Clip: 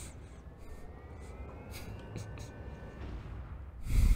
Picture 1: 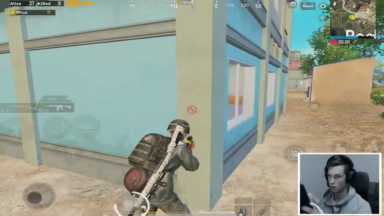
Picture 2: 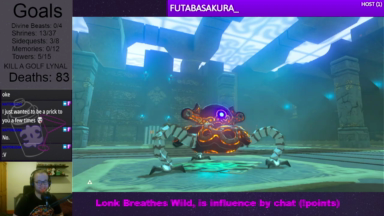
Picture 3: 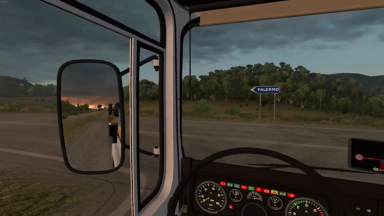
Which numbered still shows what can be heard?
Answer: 2